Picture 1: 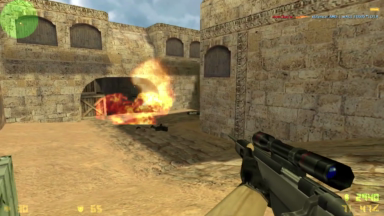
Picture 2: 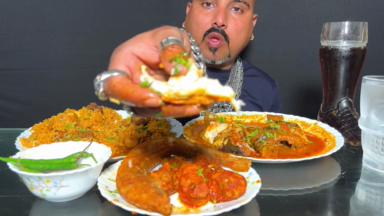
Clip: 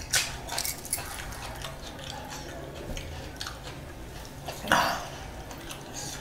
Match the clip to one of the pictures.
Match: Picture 2